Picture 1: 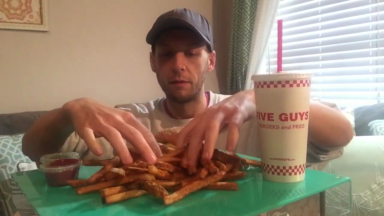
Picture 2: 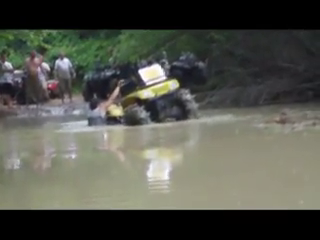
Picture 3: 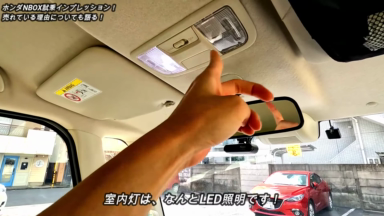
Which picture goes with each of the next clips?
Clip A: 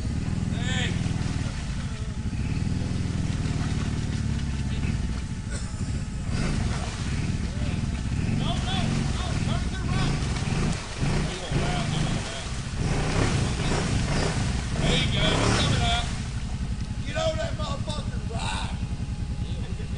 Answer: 2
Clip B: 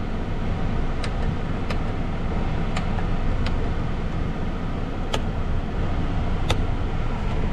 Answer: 3